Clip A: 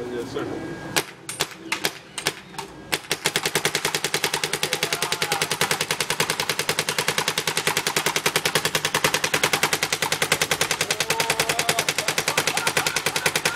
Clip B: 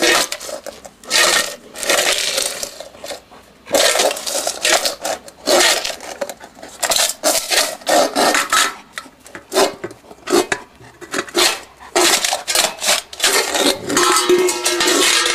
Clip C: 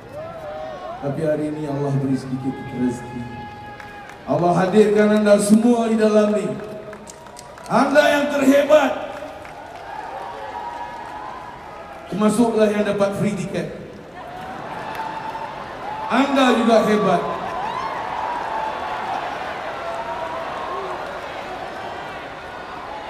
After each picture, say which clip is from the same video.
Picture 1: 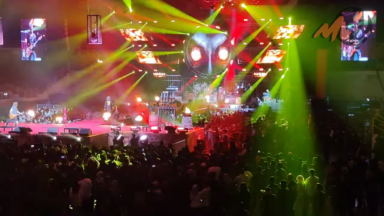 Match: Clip C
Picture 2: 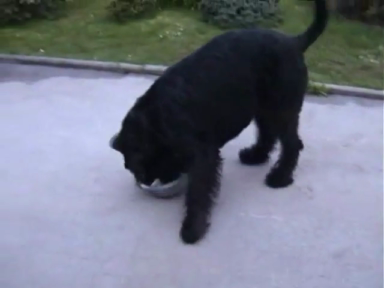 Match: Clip B